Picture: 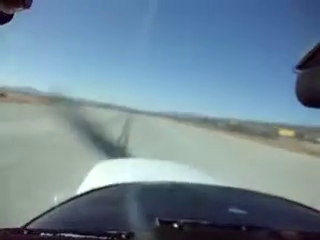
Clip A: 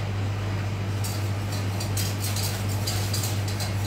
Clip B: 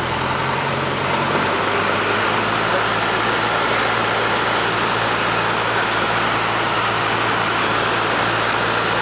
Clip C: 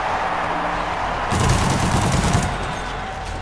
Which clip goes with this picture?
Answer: B